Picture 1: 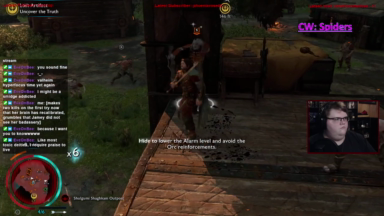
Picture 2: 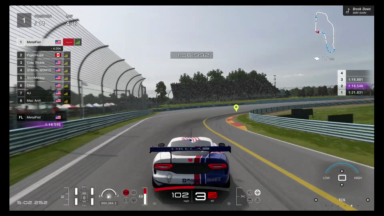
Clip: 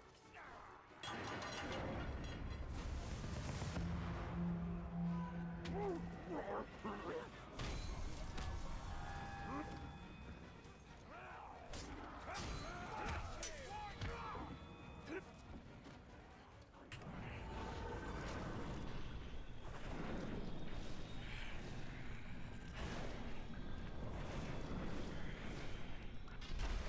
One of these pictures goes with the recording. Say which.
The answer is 1